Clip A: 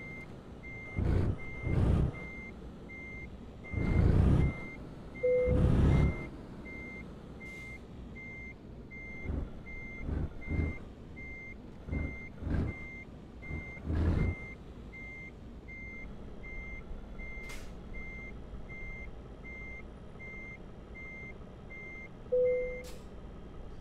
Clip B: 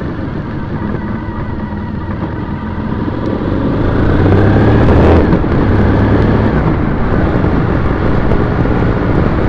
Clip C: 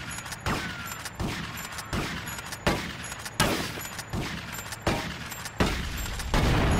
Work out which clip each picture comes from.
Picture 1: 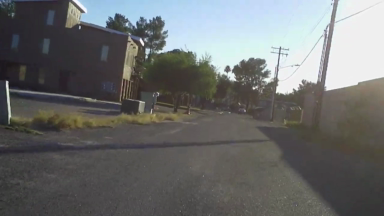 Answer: B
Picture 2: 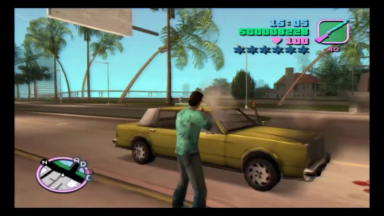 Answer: C